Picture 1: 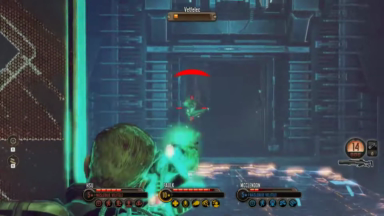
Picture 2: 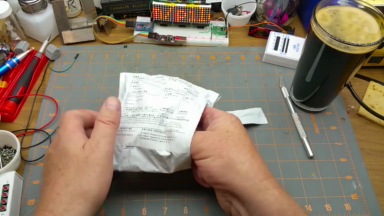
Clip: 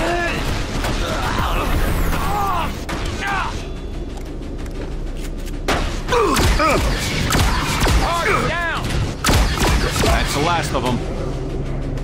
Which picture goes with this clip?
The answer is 1